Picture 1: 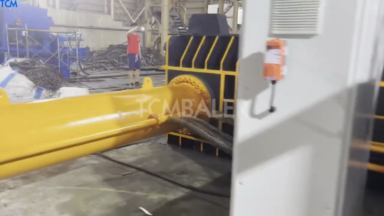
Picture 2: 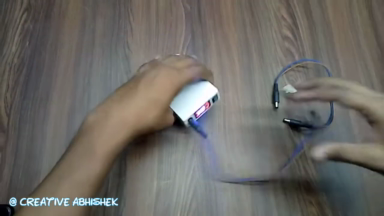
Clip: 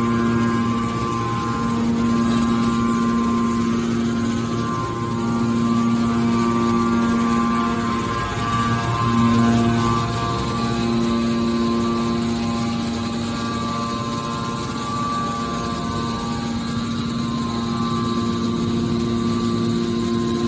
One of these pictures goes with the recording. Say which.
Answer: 1